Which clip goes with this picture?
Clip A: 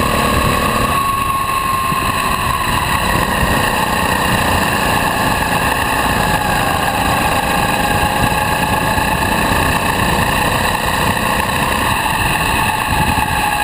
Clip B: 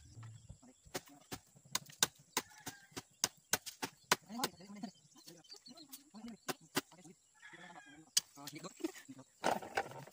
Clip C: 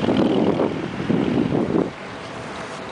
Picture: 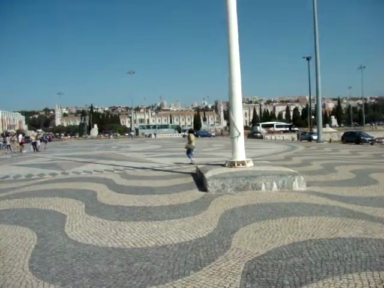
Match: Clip C